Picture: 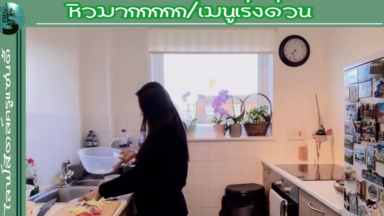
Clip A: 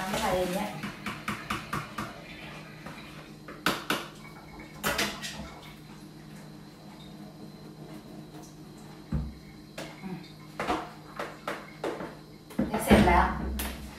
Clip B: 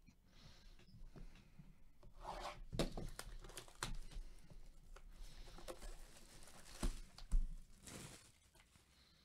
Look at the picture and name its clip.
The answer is A